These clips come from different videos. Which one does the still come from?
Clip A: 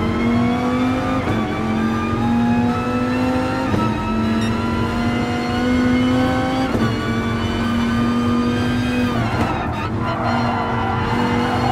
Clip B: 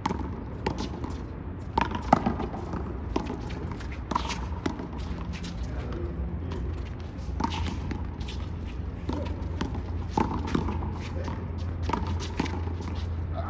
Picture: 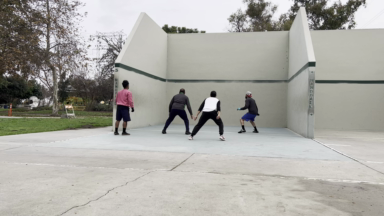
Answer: B